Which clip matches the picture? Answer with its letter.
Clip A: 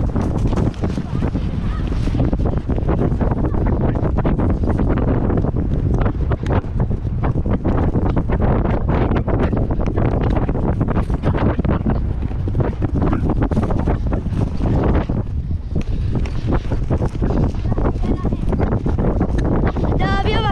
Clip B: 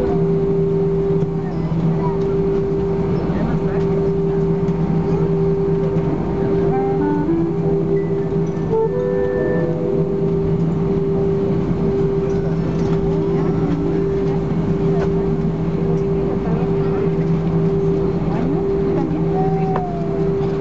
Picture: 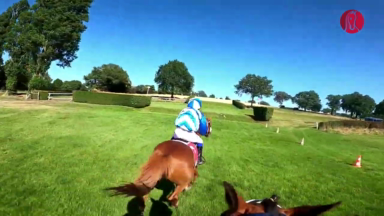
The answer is A